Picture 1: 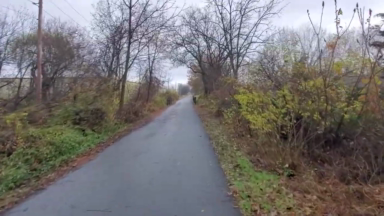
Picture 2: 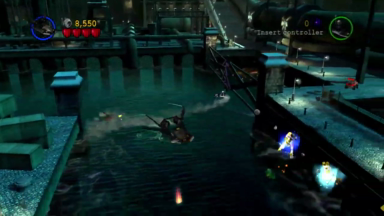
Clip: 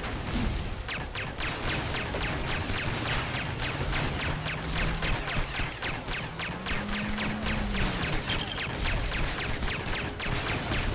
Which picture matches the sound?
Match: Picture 2